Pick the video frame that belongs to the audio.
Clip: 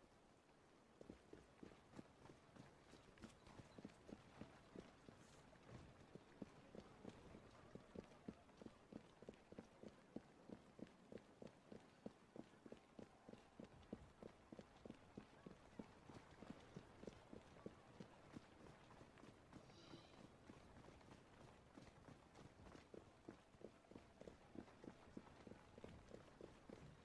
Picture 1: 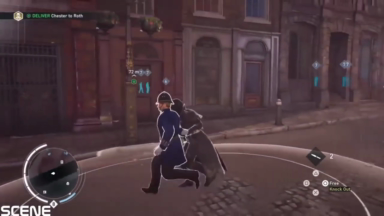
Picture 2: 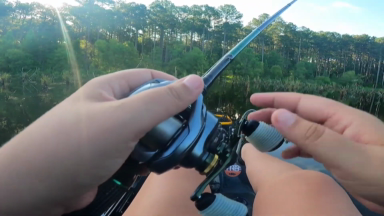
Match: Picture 1